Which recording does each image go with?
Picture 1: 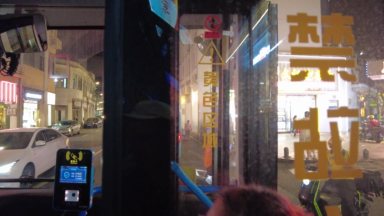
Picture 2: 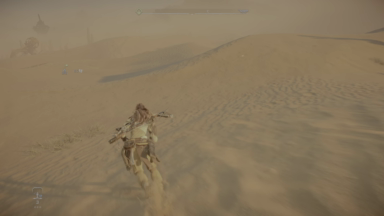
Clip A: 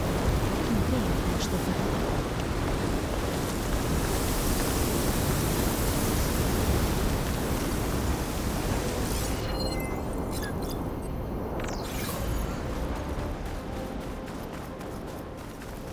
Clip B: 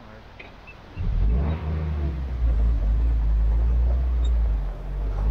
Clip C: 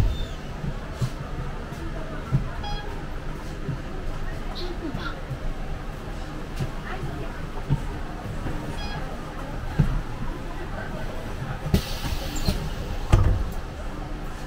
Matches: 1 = C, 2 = A